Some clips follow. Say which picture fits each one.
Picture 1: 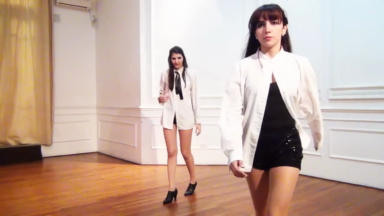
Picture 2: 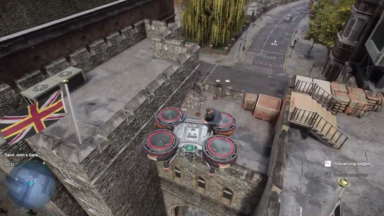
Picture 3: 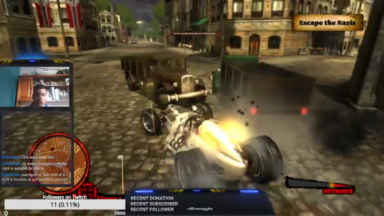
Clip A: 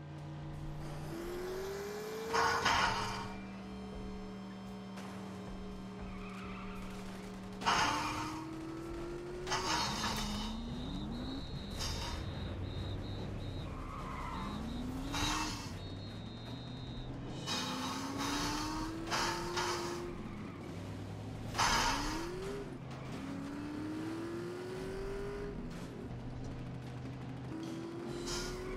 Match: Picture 3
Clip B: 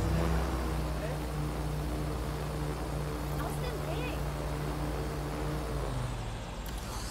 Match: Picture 2